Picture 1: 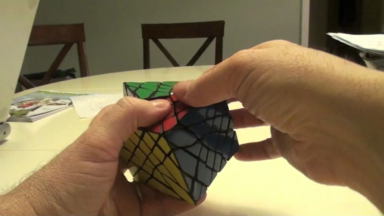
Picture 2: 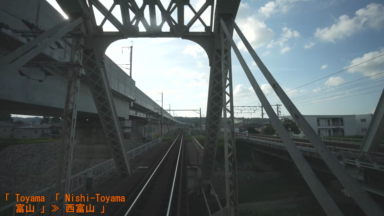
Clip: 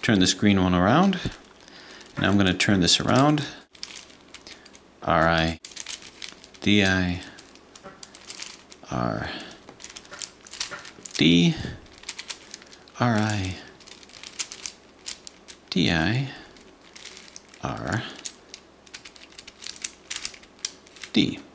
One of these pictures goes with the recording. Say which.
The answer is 1